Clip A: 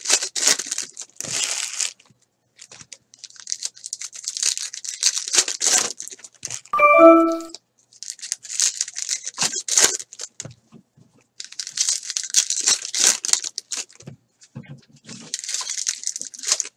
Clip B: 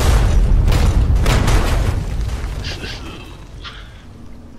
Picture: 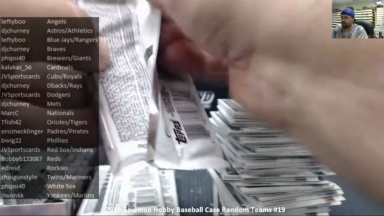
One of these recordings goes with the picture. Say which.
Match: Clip A